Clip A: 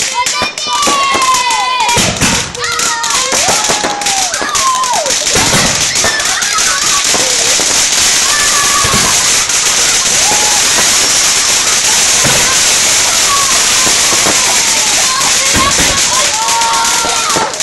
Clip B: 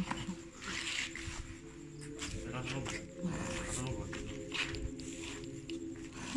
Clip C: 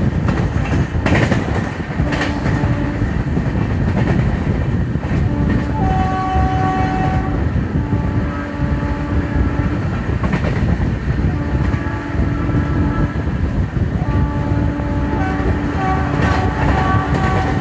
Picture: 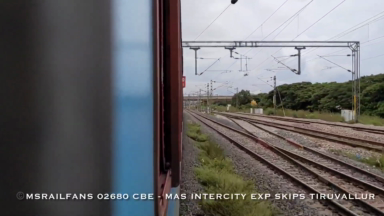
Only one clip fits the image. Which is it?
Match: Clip C